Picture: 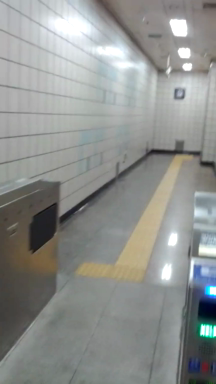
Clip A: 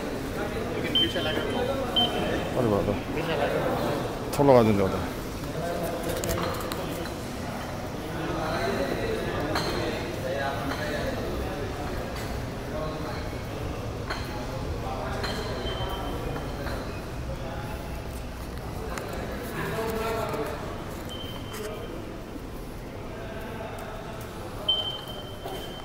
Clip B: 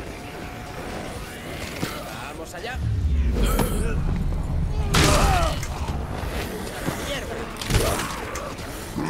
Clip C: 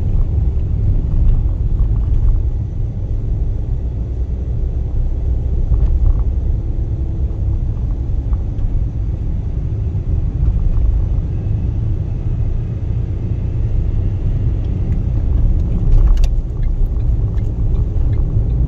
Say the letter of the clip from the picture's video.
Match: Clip A